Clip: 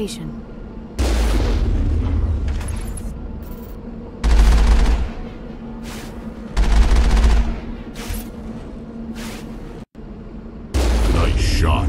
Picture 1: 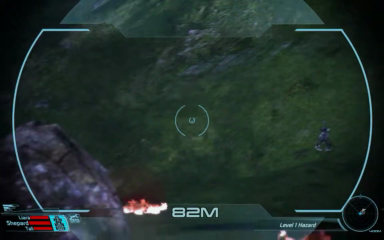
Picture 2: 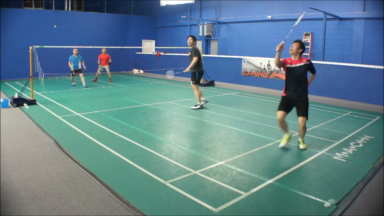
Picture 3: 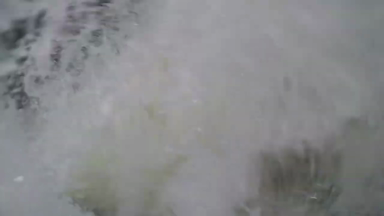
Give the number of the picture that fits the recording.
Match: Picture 1